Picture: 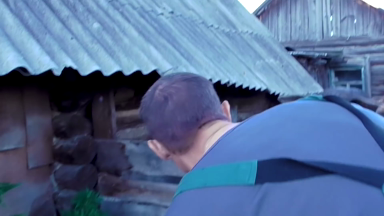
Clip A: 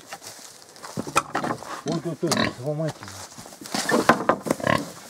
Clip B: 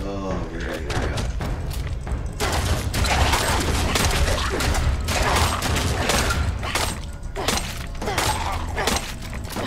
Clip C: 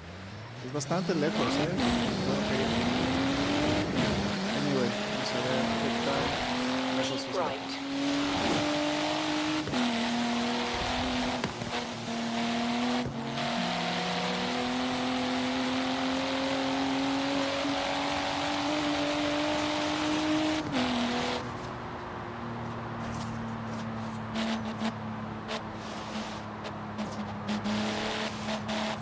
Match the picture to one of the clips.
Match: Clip A